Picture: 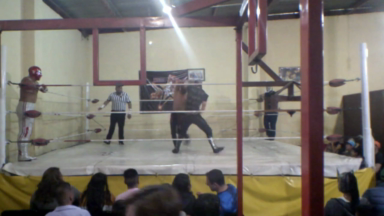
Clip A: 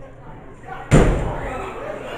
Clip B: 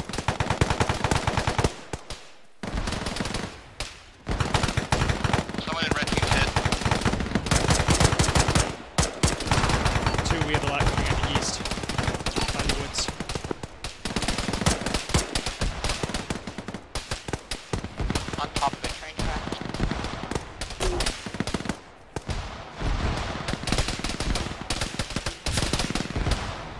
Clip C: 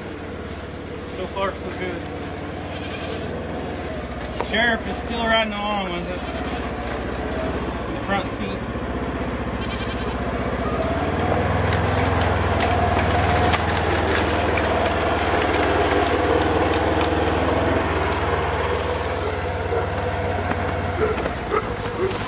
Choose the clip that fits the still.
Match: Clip A